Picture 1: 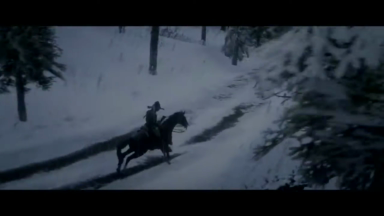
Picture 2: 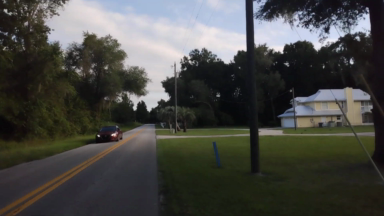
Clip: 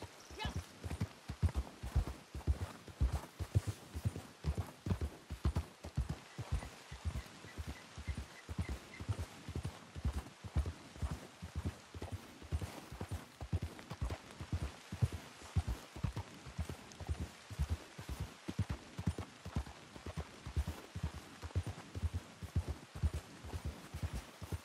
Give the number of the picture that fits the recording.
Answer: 1